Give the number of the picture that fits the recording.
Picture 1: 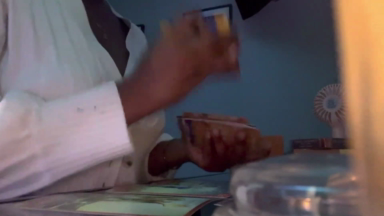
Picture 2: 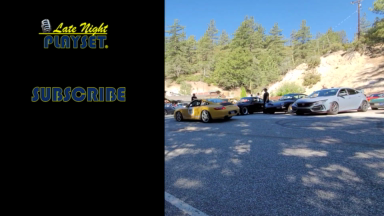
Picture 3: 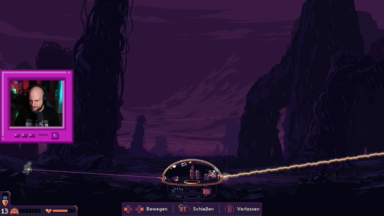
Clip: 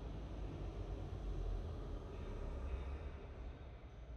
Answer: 2